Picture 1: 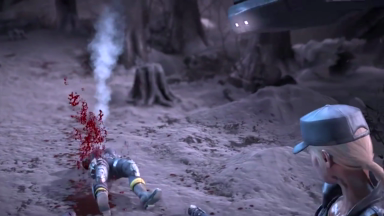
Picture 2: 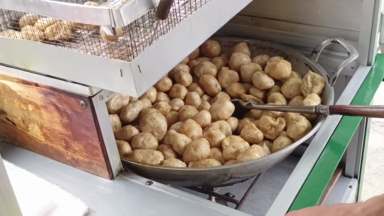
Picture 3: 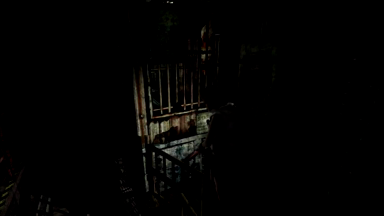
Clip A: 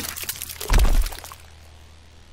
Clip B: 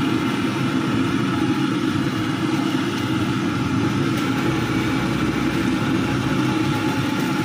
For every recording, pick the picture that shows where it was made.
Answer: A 1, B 2